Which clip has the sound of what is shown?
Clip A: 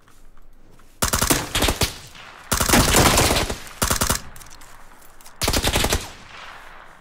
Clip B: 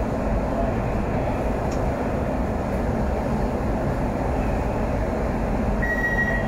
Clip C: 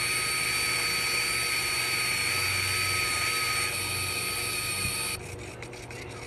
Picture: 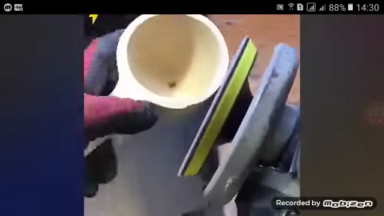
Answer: C